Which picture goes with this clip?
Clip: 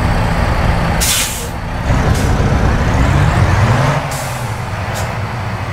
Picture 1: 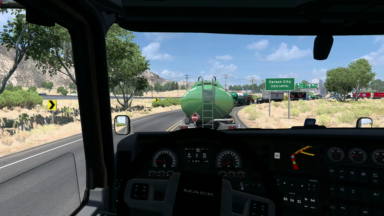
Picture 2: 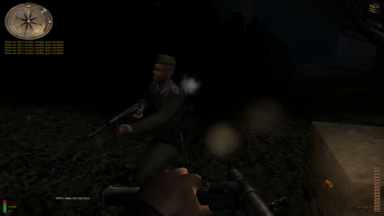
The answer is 1